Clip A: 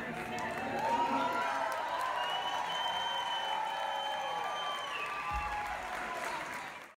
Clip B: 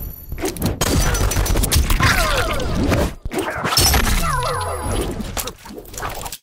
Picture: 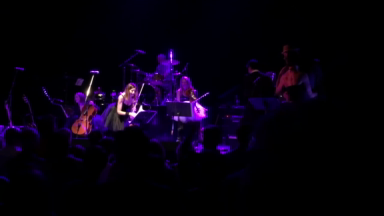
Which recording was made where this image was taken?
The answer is A